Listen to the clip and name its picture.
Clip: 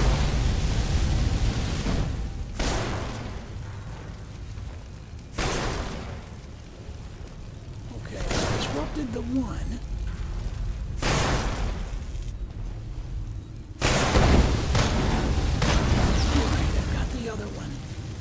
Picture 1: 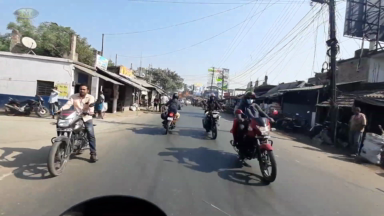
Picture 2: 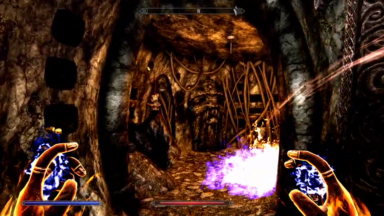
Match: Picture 2